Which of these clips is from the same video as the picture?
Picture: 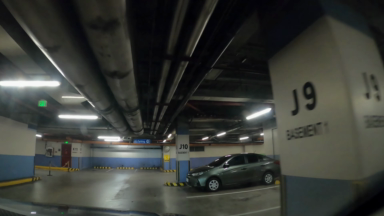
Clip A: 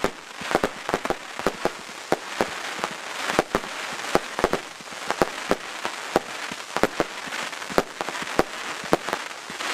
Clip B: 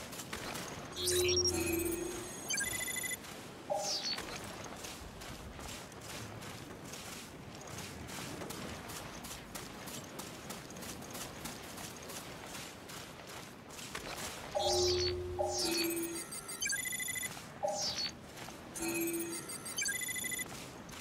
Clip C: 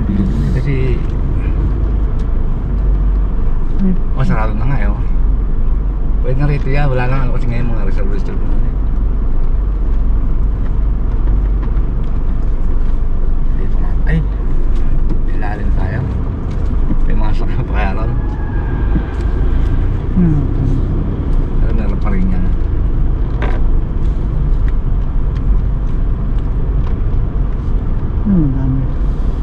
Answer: C